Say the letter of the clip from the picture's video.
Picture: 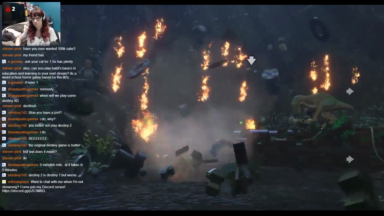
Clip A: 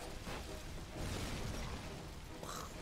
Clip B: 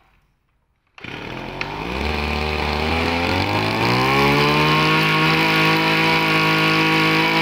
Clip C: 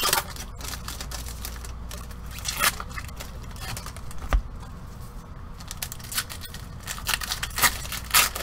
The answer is A